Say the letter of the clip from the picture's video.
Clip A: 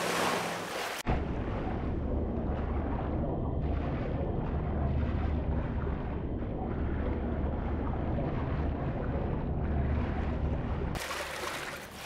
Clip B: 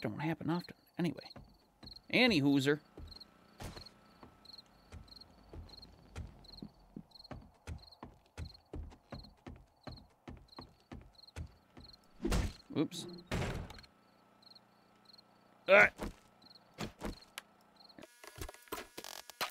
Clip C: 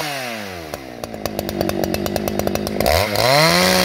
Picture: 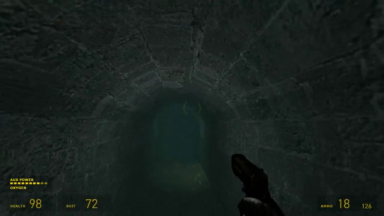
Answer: A